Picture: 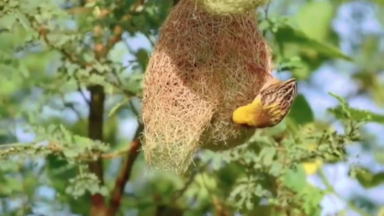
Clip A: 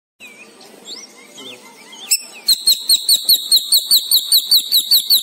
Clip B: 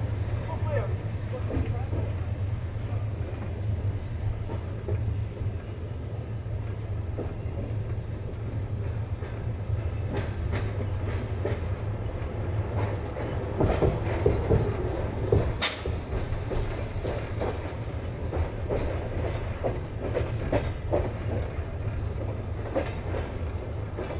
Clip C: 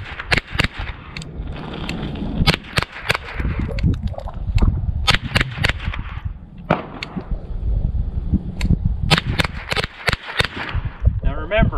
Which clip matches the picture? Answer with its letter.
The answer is A